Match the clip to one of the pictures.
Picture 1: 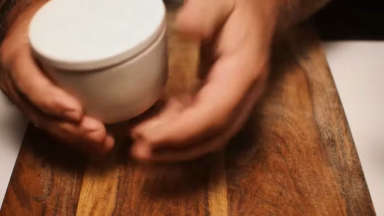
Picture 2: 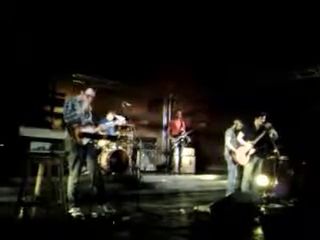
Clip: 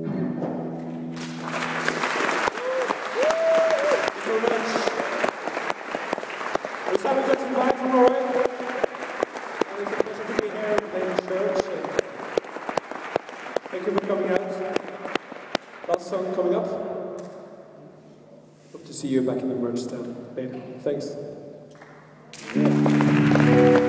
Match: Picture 2